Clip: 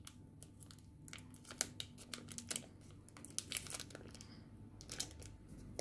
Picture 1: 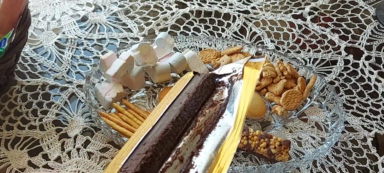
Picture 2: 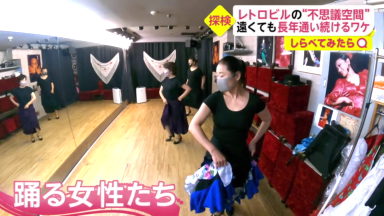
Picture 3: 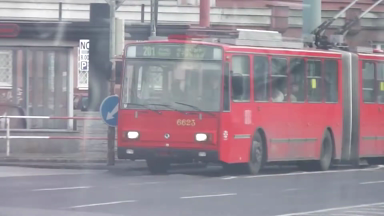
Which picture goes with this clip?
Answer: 1